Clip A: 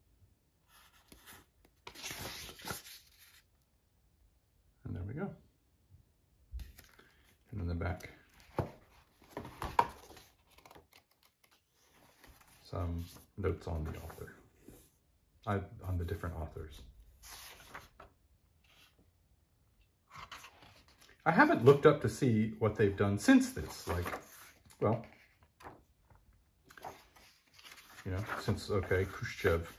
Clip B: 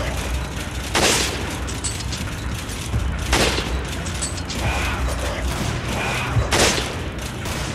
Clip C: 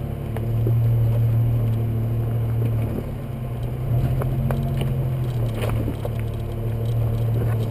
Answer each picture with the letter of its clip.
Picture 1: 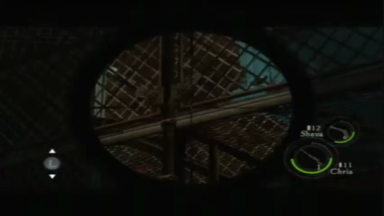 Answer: B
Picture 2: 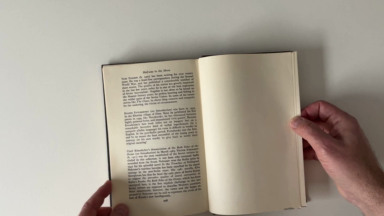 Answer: A